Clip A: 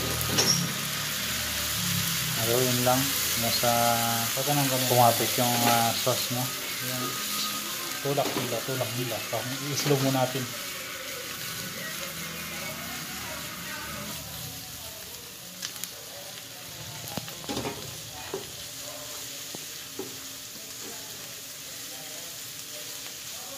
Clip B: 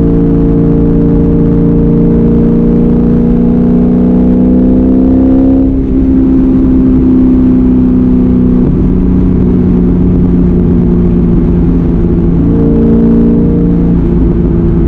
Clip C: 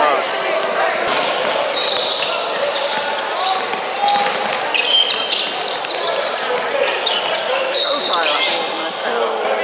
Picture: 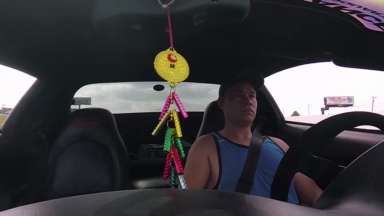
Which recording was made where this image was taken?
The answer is B